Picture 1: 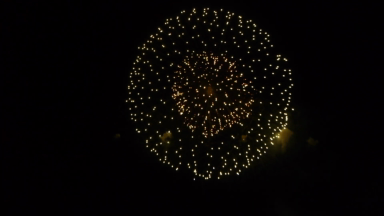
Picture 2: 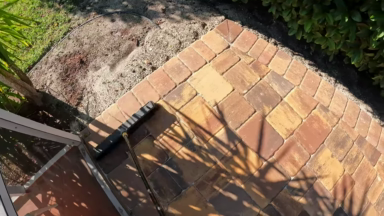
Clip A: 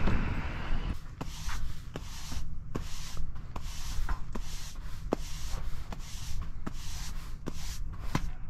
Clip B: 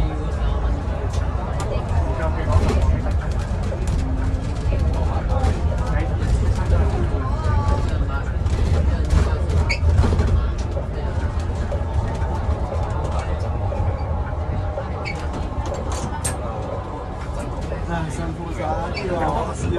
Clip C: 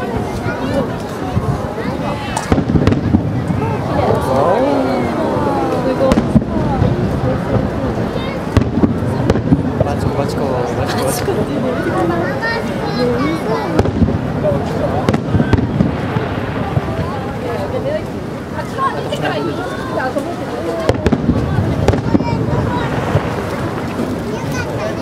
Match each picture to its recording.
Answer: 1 C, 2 A